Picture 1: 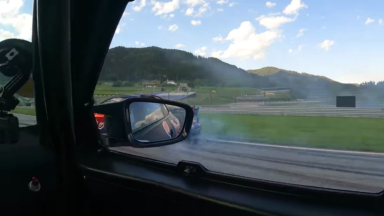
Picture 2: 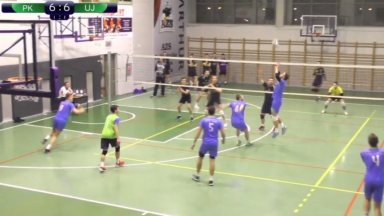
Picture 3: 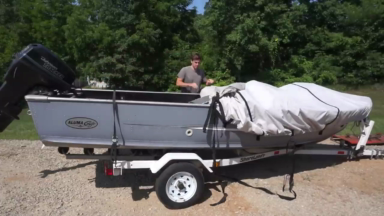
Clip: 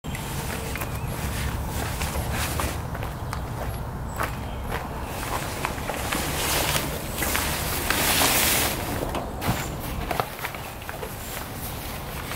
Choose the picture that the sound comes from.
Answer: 3